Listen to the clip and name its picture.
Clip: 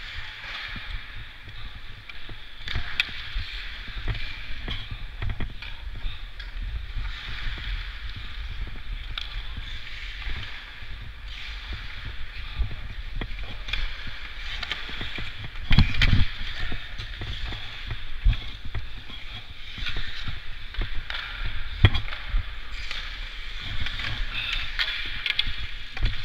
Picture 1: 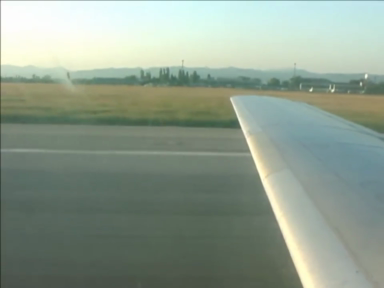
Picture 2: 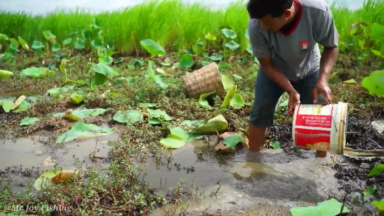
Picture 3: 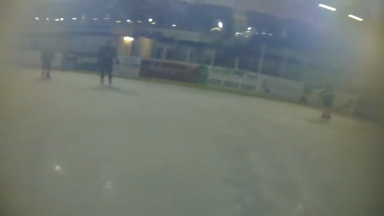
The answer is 3